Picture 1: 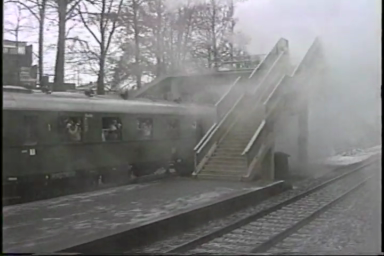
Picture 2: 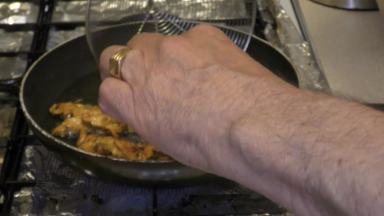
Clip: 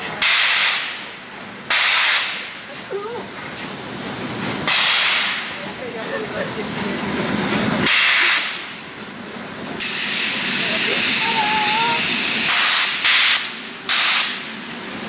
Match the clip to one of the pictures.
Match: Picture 1